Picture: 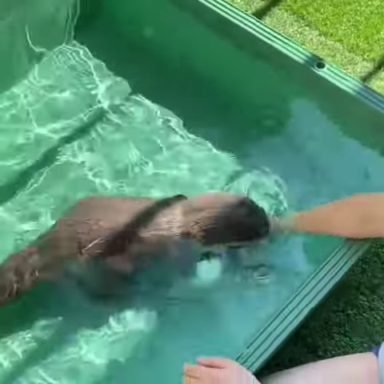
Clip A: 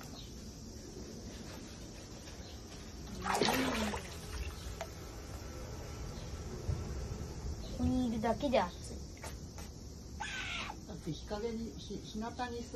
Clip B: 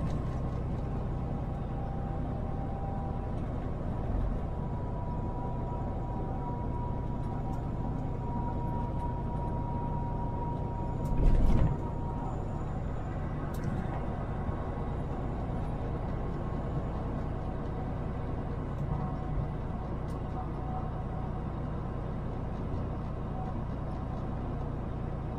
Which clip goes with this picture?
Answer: A